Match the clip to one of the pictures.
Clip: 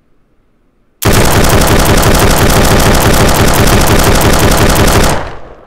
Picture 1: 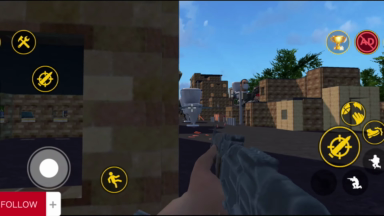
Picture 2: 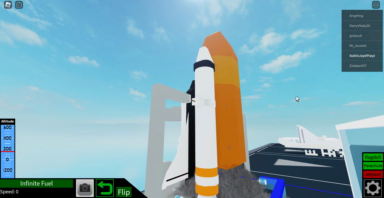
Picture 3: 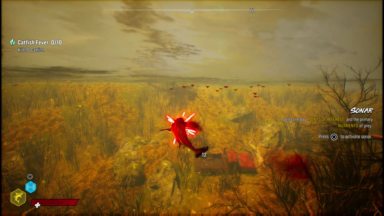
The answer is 1